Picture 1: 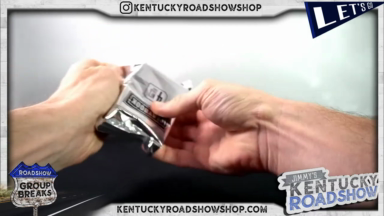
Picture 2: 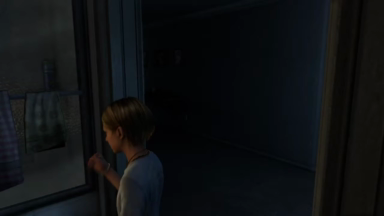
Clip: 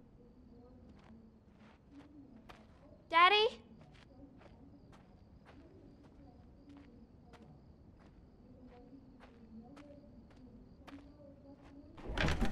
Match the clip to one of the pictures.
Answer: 2